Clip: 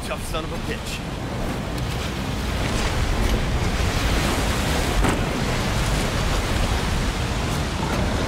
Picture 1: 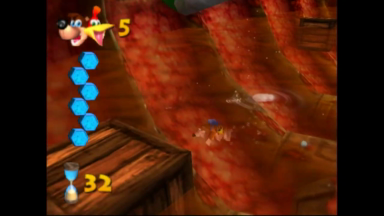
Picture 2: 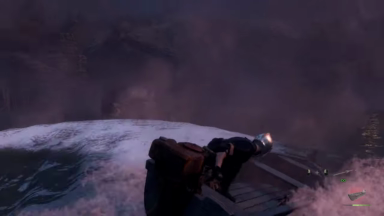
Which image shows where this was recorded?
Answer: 2